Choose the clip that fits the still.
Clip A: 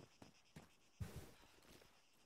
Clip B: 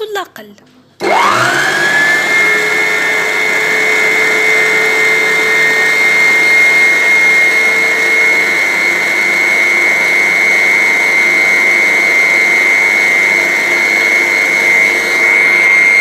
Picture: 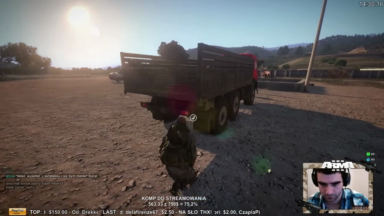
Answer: A